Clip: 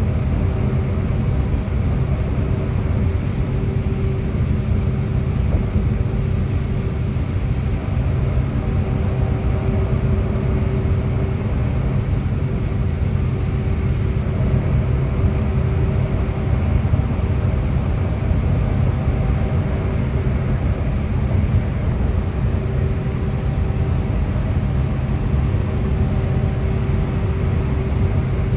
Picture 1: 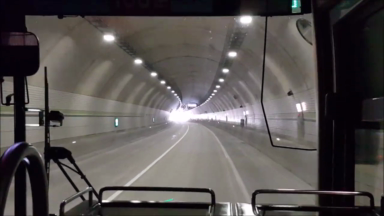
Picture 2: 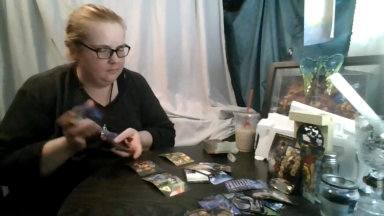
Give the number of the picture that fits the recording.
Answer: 1